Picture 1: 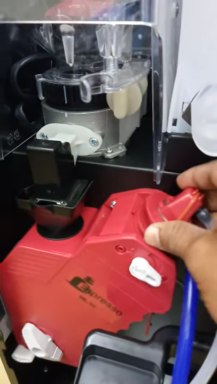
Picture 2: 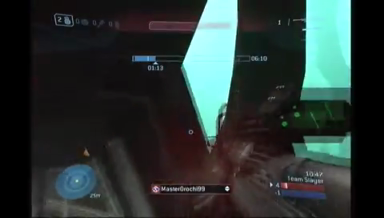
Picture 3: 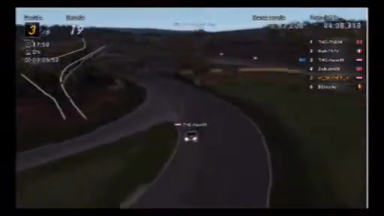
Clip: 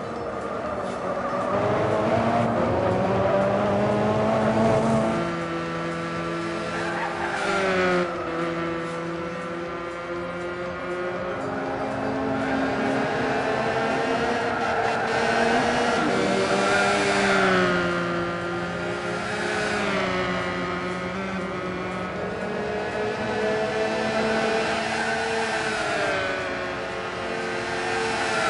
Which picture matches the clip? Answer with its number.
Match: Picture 3